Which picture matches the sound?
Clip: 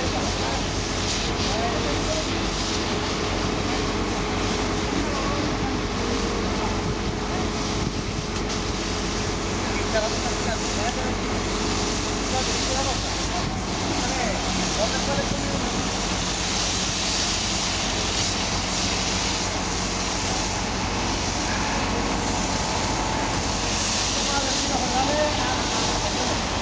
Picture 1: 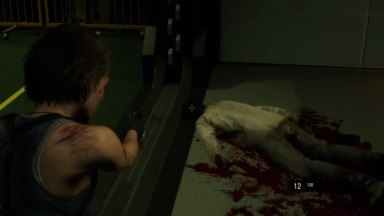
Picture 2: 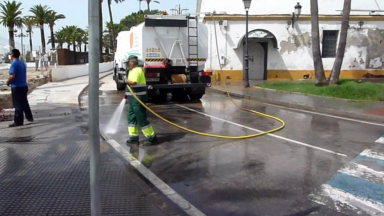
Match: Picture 2